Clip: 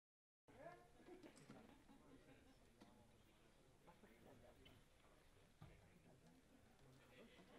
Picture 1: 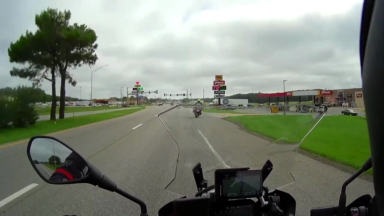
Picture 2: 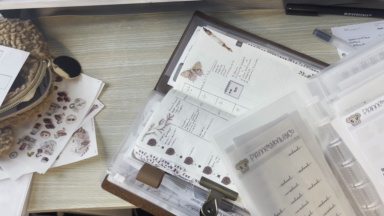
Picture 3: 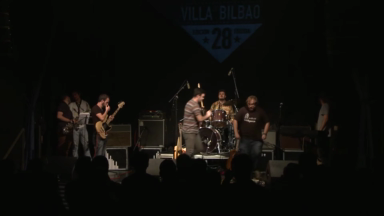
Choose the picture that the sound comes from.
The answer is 3